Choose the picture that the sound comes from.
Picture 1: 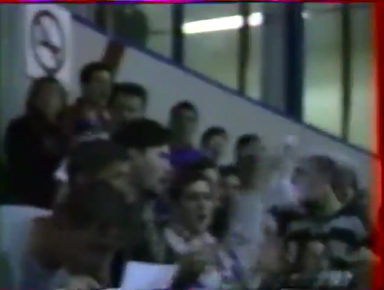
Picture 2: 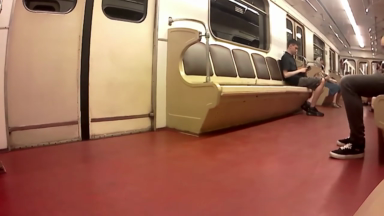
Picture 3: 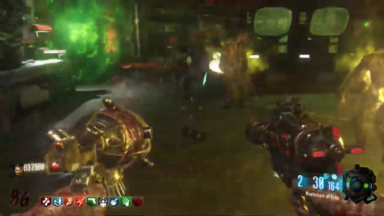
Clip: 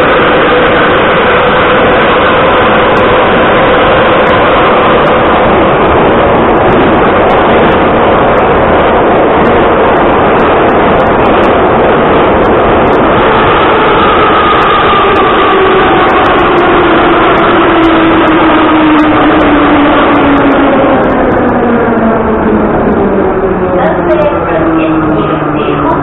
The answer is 2